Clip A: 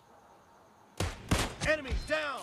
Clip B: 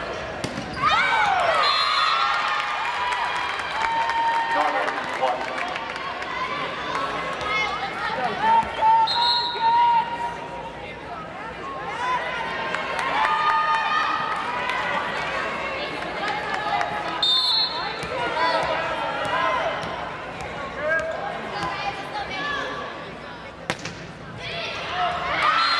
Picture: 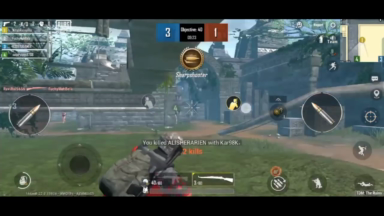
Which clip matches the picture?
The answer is A